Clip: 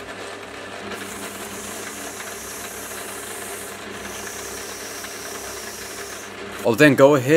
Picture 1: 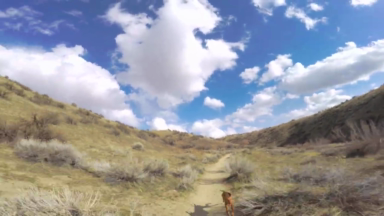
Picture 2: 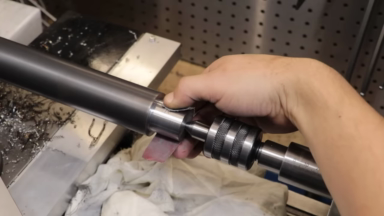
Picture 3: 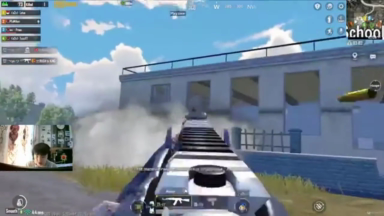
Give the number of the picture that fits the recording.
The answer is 2